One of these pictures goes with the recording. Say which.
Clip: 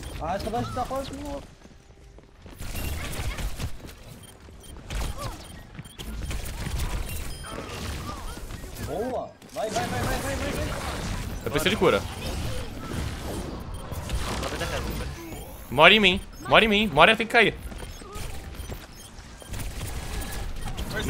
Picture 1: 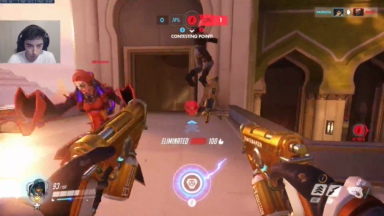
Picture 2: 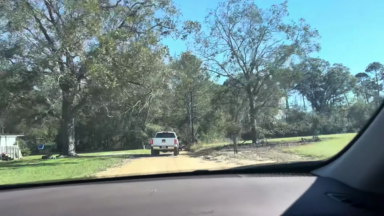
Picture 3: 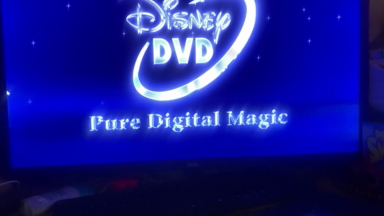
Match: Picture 1